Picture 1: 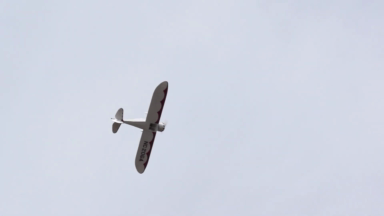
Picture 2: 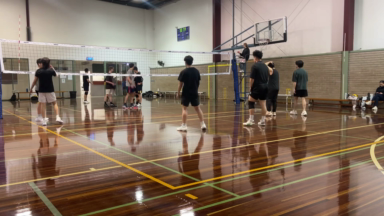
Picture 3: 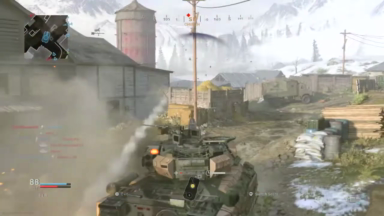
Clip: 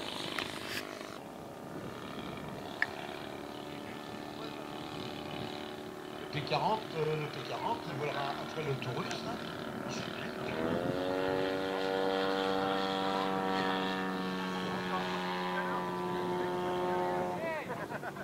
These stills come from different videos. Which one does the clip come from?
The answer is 1